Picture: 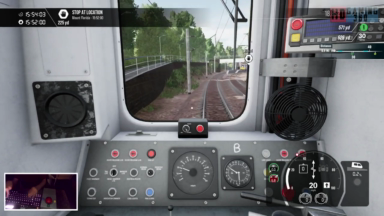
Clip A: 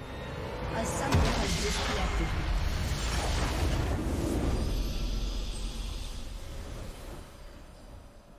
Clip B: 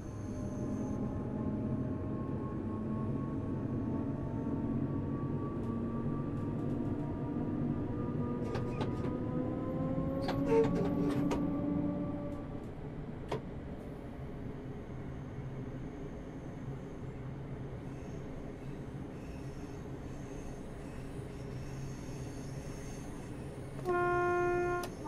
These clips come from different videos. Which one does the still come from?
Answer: B